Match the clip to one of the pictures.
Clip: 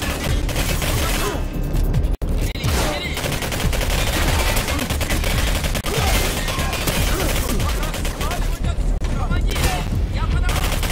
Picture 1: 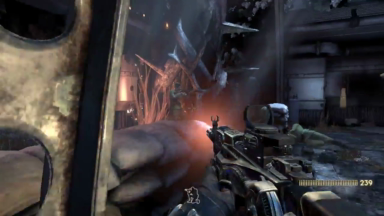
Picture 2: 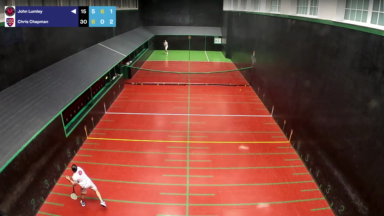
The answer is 1